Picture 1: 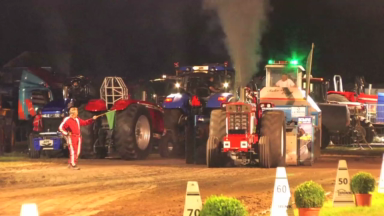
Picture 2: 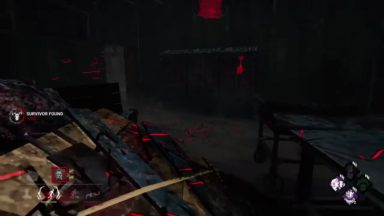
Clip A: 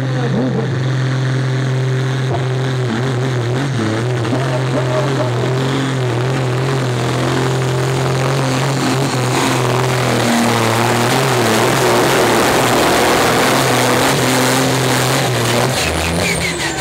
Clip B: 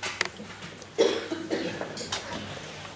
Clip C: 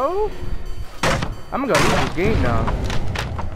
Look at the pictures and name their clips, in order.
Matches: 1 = A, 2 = C